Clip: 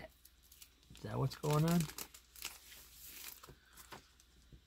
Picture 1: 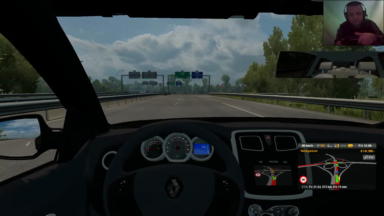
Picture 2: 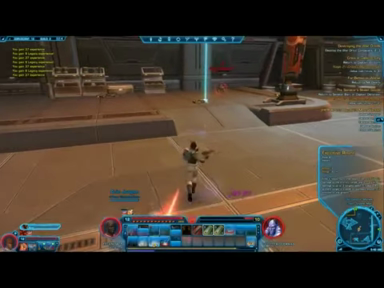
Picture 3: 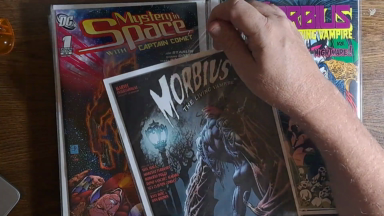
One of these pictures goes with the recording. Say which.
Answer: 3